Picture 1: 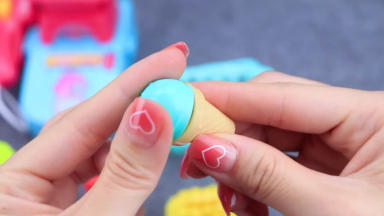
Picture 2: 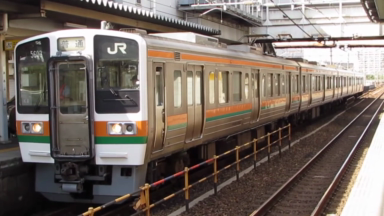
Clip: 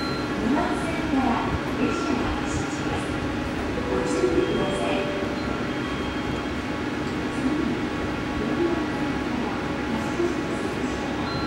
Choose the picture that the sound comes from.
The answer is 2